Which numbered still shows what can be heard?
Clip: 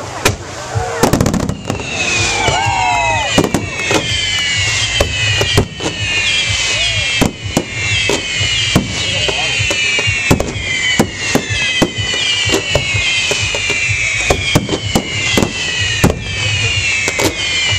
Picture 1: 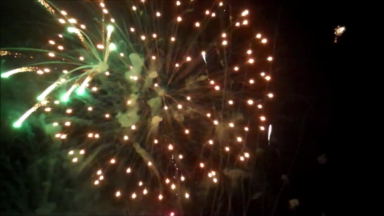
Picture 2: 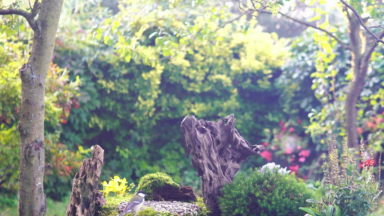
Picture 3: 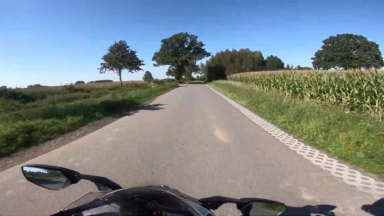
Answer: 1